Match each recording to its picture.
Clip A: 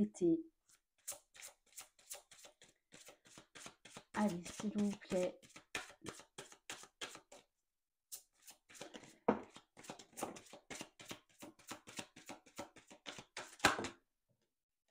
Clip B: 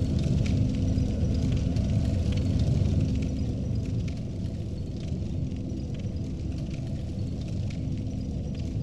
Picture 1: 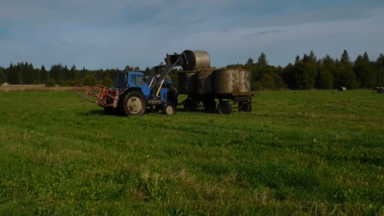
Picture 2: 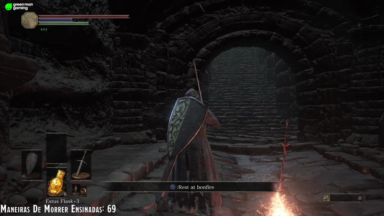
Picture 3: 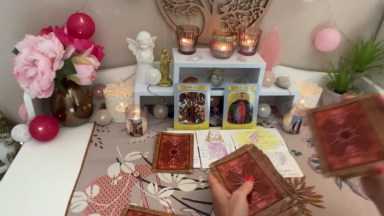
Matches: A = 3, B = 2